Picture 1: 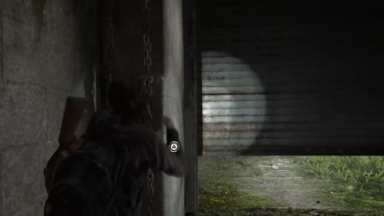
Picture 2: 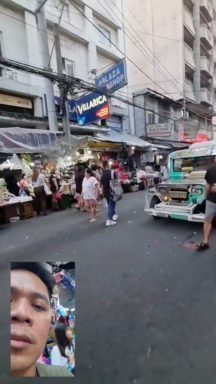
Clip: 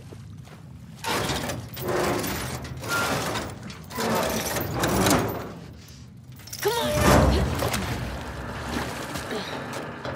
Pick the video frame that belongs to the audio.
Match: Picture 1